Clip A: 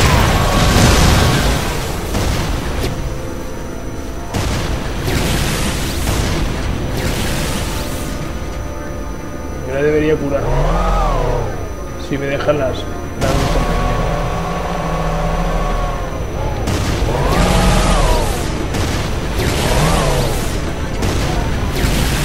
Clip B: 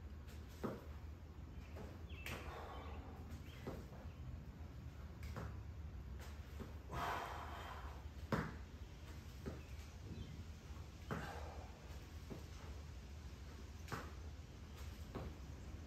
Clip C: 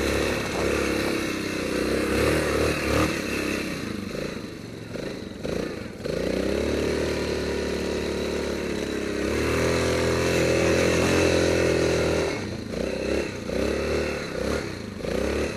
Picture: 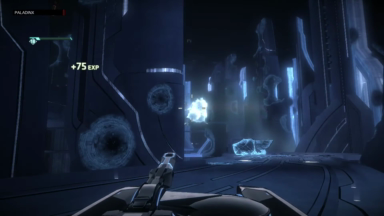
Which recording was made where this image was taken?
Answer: A